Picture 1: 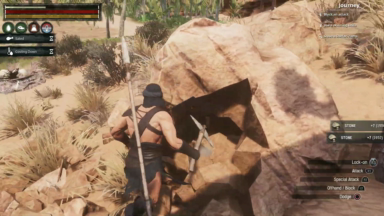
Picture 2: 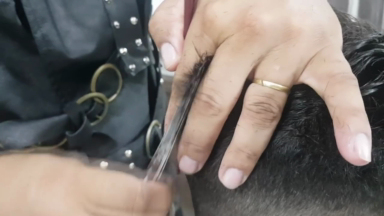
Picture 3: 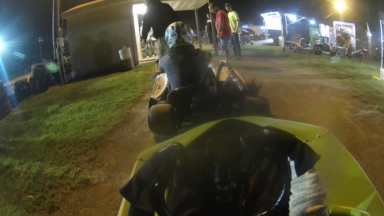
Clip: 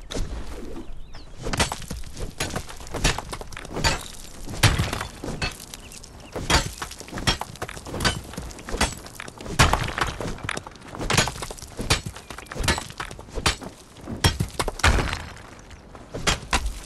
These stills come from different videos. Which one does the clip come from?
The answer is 1